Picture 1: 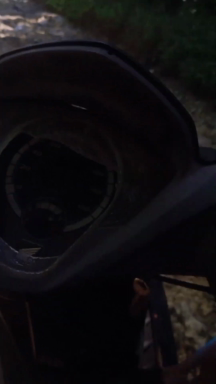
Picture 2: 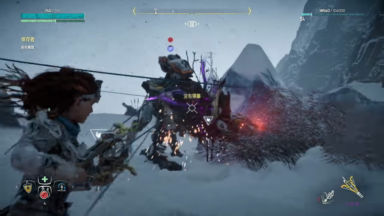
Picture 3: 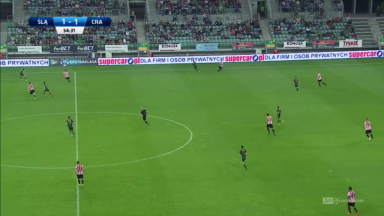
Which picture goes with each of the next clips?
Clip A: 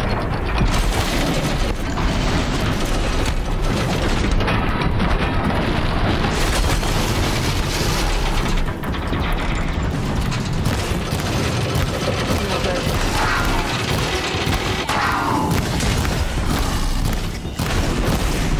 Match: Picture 2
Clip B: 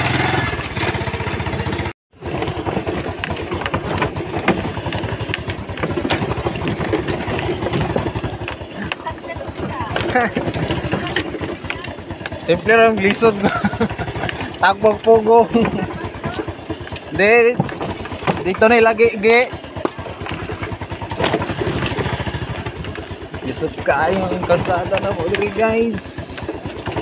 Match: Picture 1